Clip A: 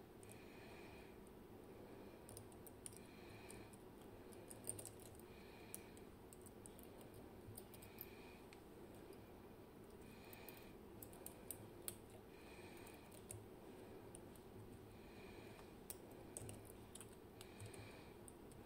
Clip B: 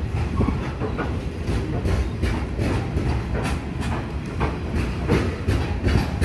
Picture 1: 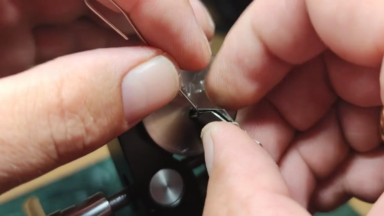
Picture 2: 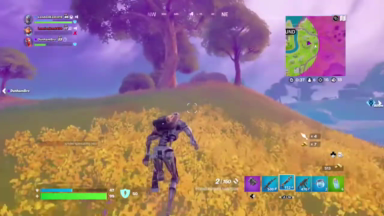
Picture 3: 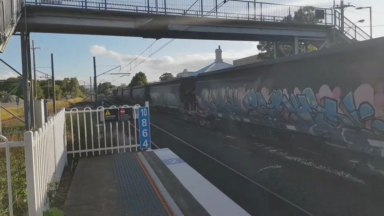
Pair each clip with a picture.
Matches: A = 1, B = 3